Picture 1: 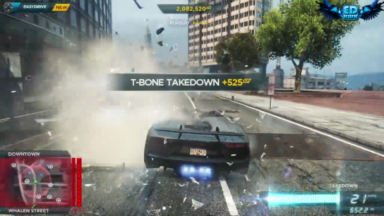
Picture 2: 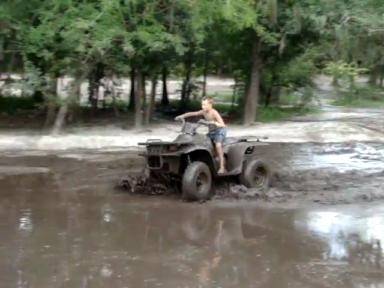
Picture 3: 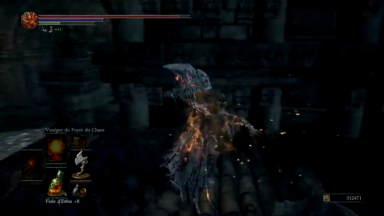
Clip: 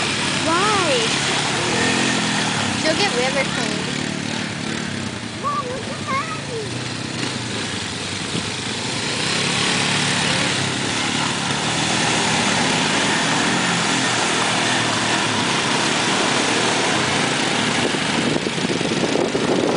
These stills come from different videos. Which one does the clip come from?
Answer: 2